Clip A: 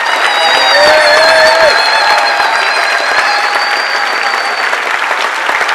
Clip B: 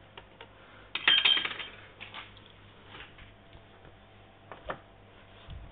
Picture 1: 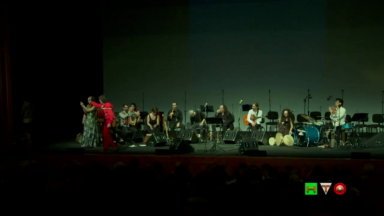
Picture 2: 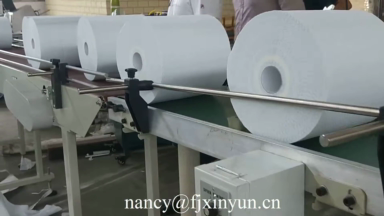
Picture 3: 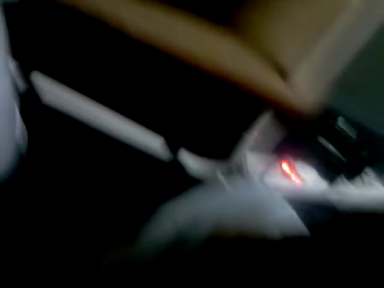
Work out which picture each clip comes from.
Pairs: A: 1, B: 3